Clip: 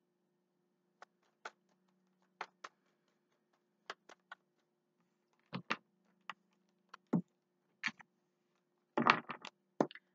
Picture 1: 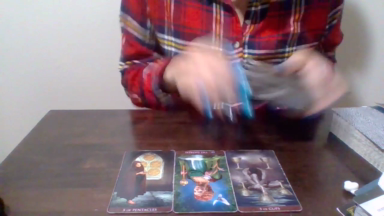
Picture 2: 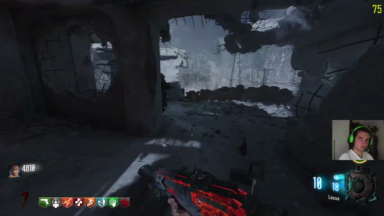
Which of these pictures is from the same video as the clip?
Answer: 1